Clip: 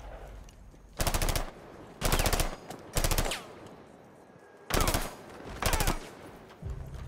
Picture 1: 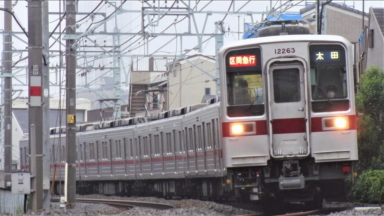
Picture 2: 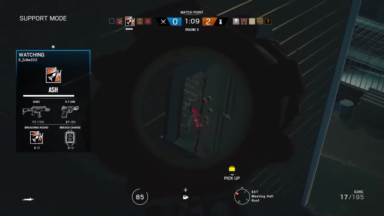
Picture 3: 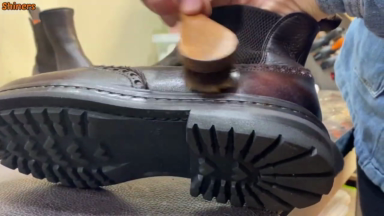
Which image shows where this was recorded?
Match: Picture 2